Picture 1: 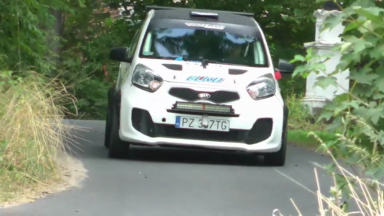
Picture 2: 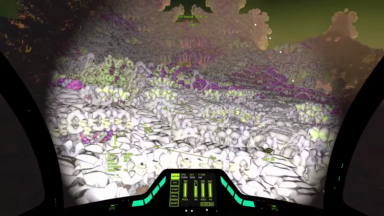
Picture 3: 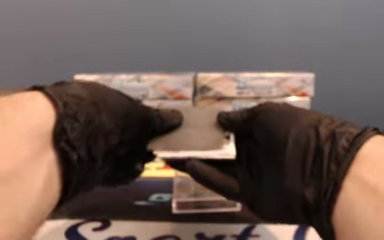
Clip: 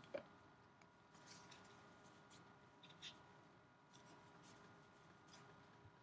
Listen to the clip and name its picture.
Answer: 3